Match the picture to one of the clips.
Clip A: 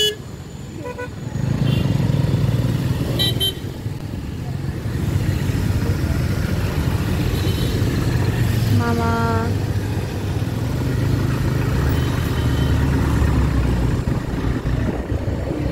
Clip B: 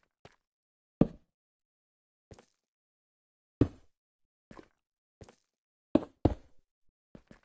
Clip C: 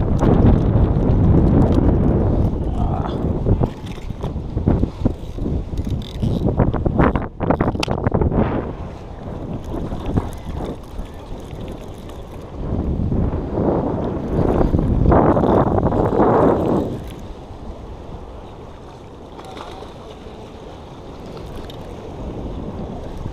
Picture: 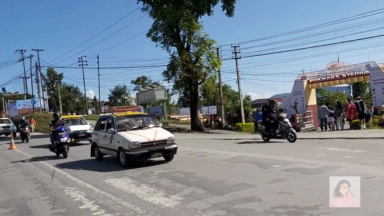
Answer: A